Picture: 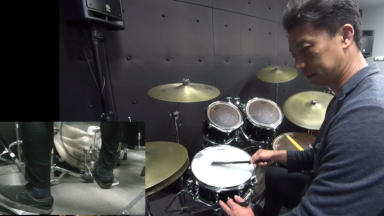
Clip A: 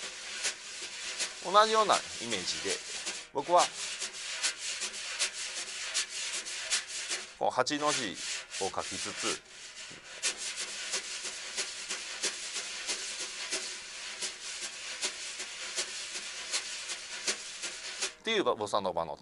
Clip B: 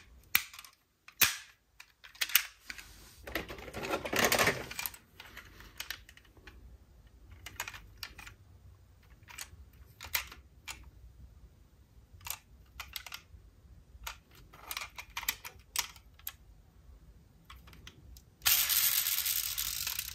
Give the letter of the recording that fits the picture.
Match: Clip A